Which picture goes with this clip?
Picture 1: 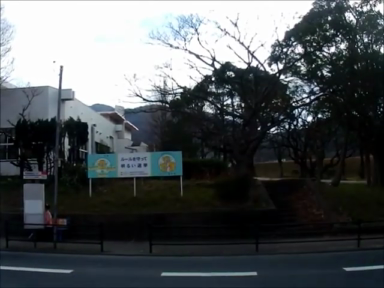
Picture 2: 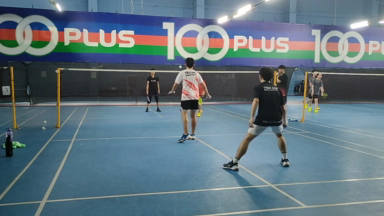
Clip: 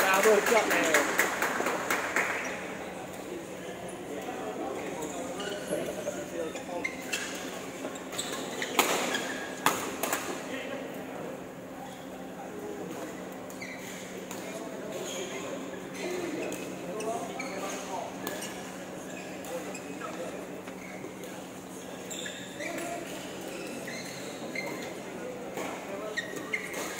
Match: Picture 2